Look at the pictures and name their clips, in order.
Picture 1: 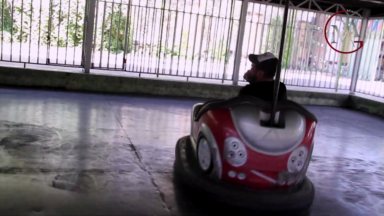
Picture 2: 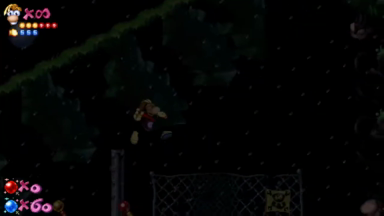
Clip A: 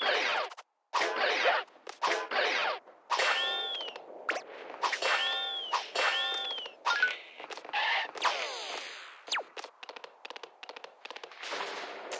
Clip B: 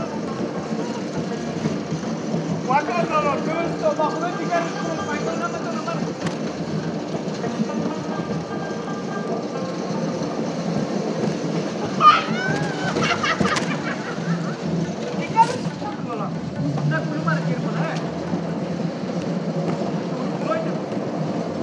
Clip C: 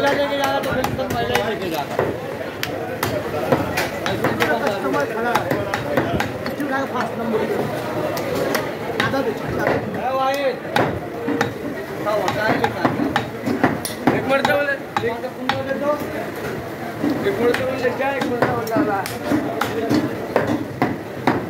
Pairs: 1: B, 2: A